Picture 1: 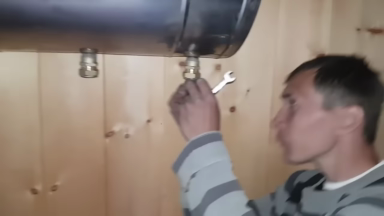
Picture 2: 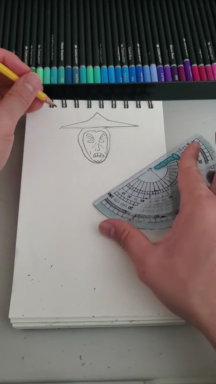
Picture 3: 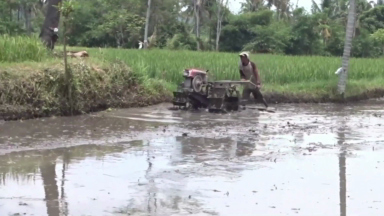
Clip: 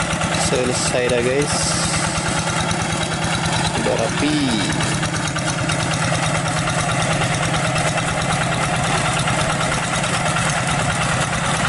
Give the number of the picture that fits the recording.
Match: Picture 3